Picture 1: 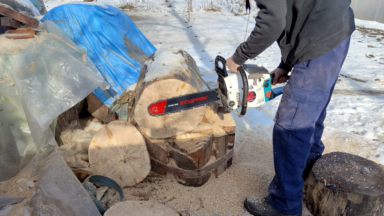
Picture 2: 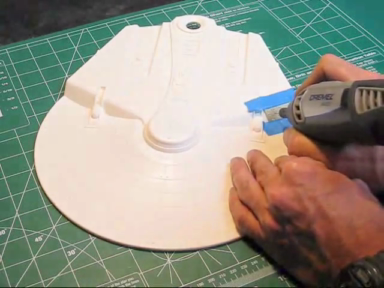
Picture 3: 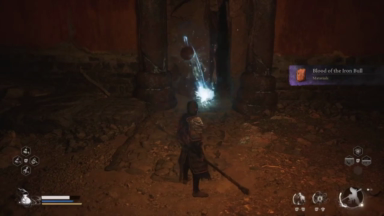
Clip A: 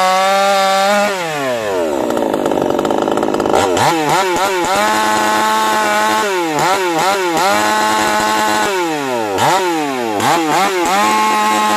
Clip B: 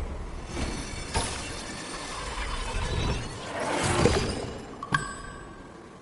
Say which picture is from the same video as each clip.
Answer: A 1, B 3